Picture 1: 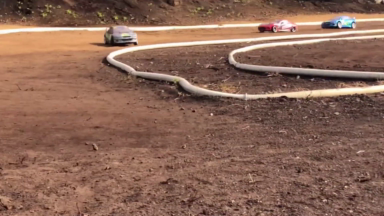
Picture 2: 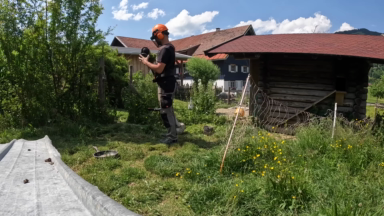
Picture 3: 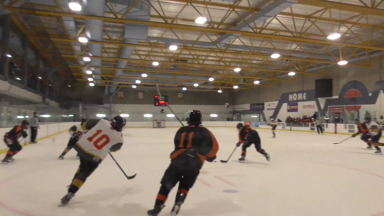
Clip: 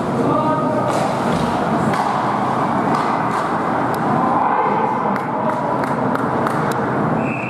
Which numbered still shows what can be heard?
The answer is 3